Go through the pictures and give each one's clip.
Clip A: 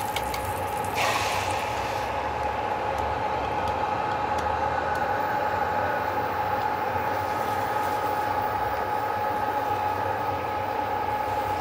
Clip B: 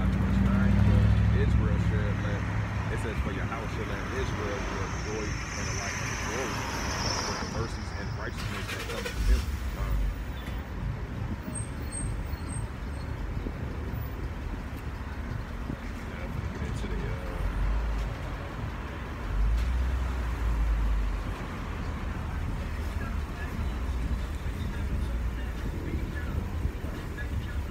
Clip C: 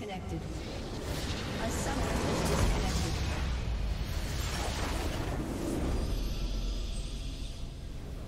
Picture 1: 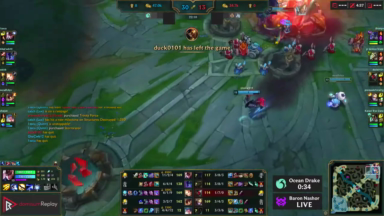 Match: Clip C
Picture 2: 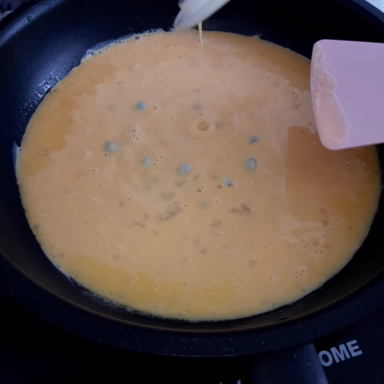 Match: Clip A